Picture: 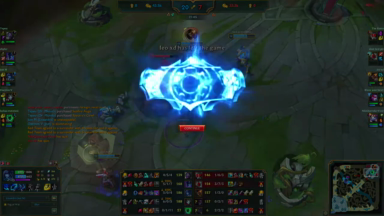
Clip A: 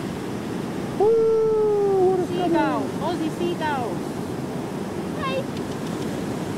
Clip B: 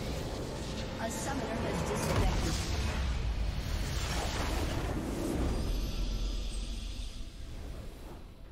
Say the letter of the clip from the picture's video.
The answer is B